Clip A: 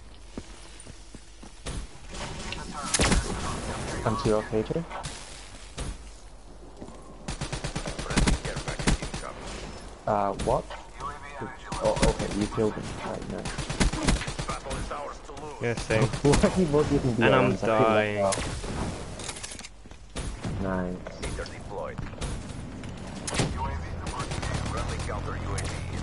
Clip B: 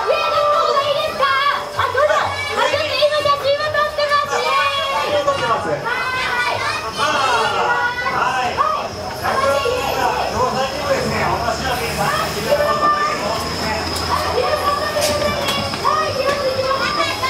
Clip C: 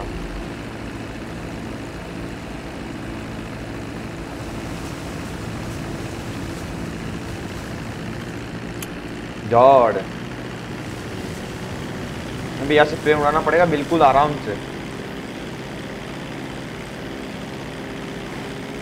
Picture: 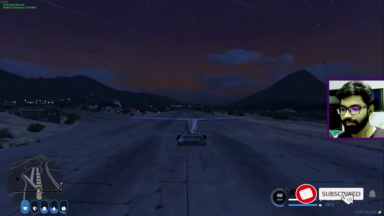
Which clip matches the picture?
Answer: C